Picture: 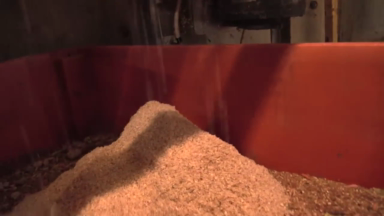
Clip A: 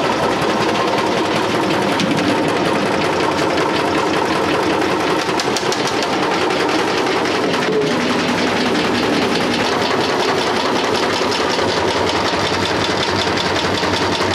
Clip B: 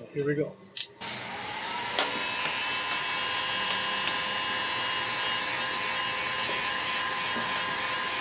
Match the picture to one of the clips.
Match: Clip A